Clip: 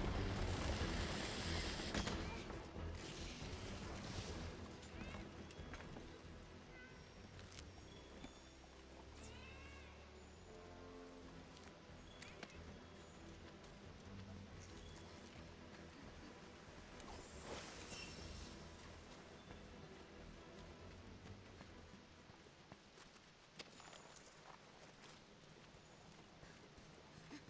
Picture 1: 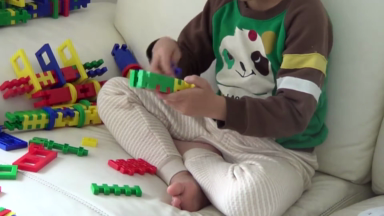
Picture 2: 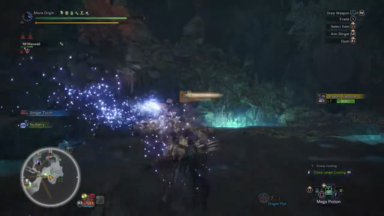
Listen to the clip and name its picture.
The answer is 2